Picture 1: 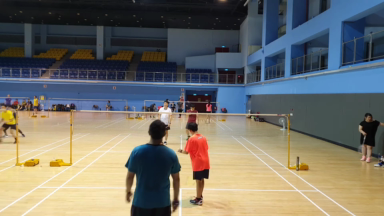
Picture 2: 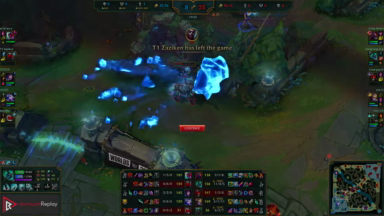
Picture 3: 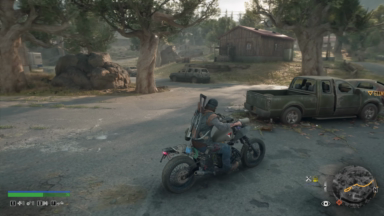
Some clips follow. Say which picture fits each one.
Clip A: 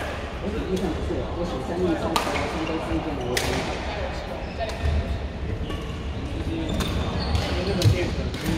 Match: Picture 1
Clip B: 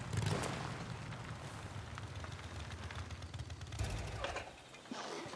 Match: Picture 3